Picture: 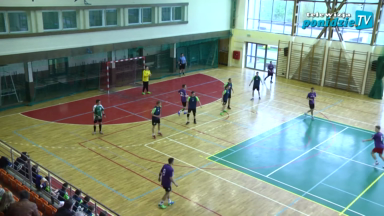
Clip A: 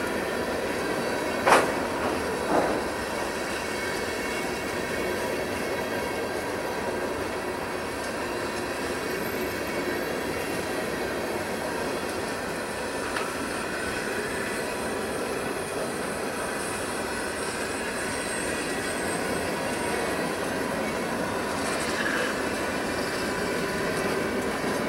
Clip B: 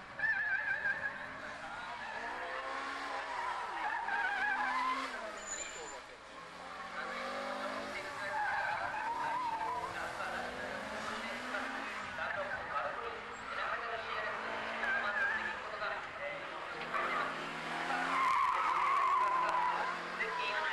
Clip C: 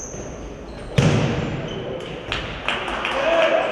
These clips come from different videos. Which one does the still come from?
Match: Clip C